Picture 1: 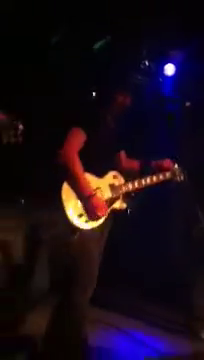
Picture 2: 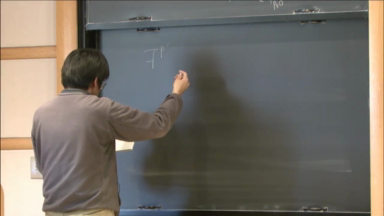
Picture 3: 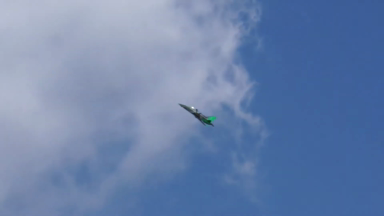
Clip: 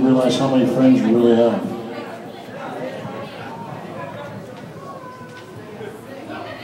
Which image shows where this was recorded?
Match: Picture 1